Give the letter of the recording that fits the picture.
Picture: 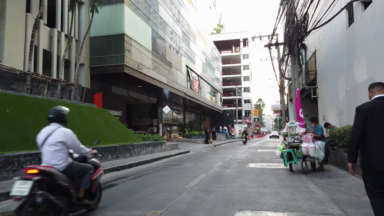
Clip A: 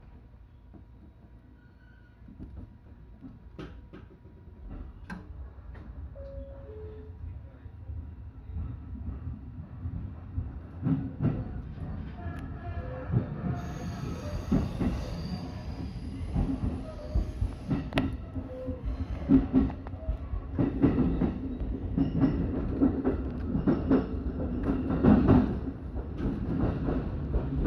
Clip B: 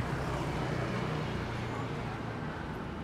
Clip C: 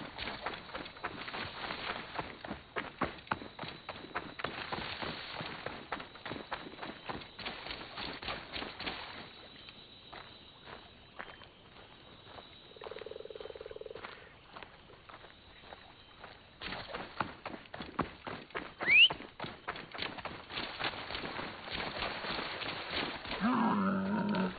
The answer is B